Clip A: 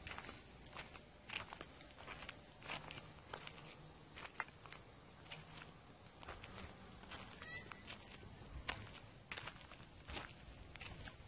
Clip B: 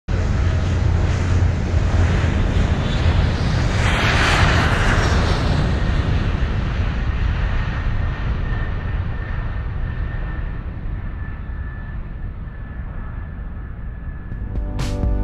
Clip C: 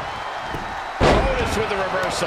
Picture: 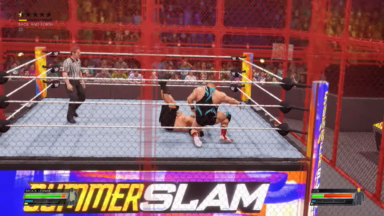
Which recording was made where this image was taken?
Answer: C